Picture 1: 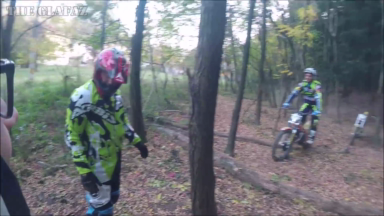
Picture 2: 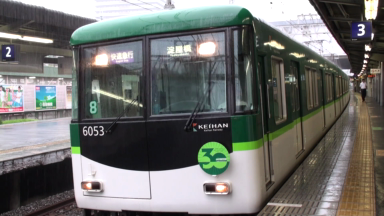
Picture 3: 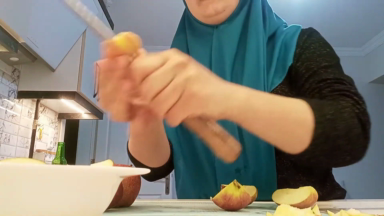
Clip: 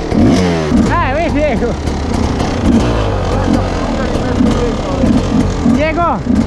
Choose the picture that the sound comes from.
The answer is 1